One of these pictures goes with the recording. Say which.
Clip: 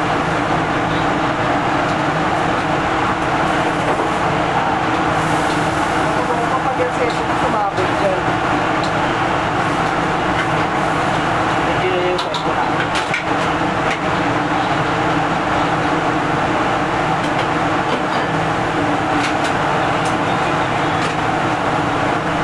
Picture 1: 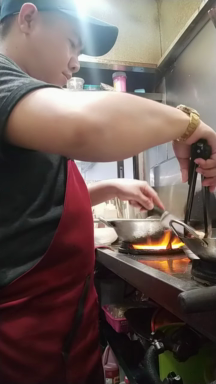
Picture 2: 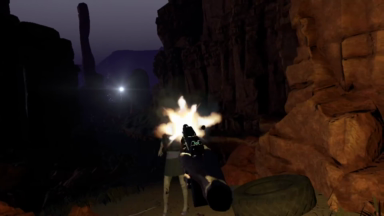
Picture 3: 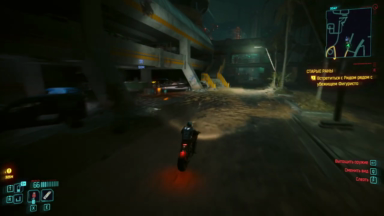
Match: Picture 1